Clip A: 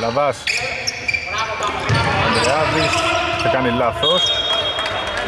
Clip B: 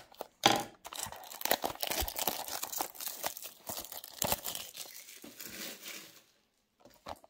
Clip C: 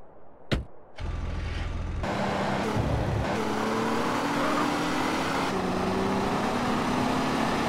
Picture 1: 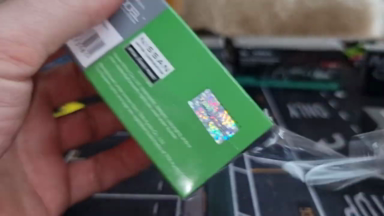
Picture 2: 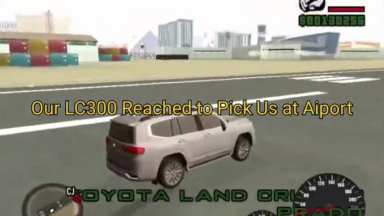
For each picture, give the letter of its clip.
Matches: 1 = B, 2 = C